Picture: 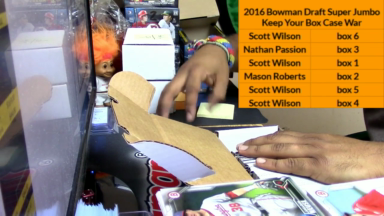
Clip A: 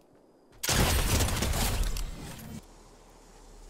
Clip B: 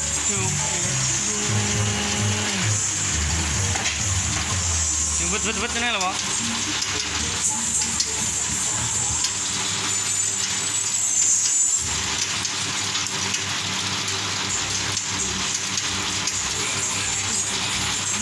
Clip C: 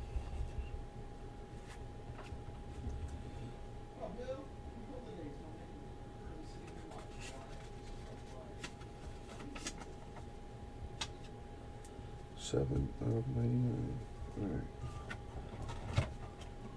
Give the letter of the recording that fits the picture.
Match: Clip C